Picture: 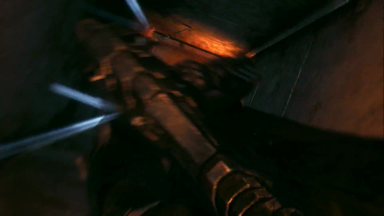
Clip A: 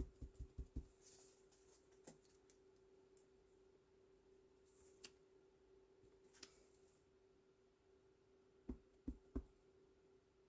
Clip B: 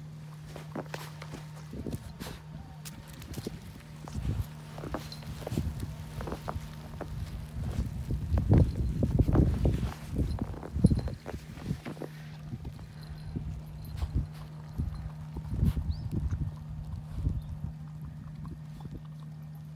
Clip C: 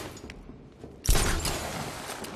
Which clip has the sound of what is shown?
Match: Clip C